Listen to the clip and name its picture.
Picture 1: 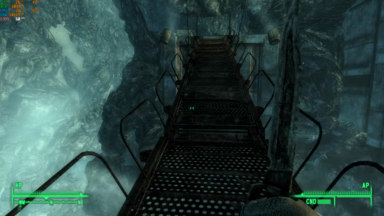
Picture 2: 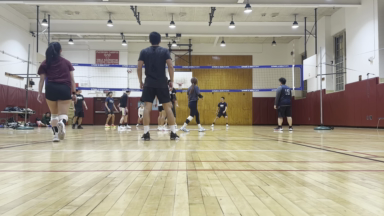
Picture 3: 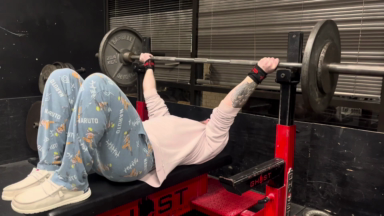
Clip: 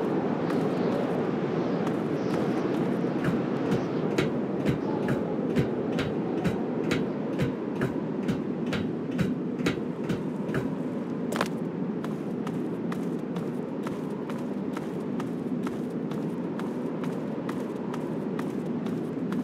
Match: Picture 1